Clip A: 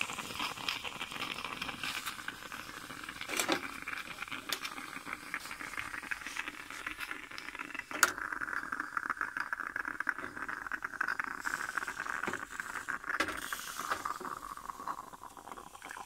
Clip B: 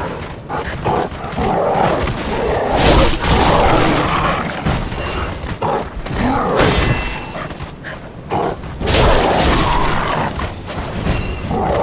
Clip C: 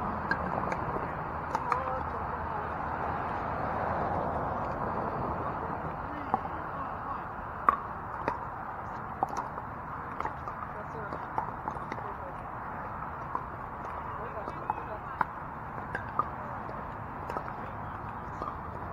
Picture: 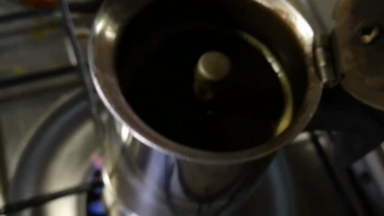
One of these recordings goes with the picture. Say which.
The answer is A